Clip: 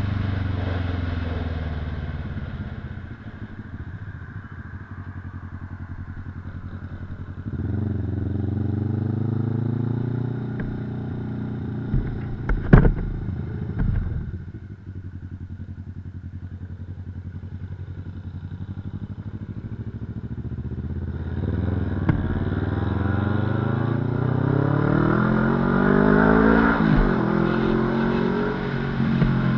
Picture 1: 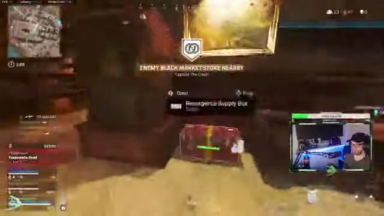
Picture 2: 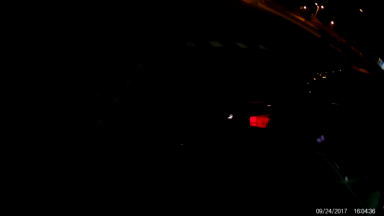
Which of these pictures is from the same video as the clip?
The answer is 2